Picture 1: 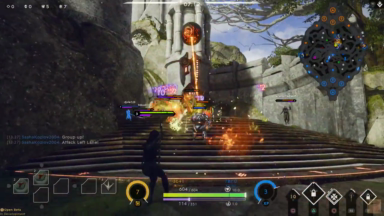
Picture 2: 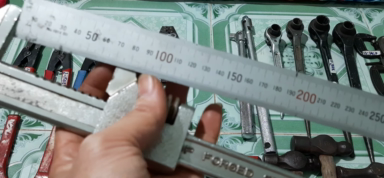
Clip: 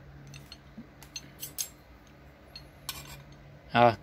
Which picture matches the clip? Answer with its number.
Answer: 2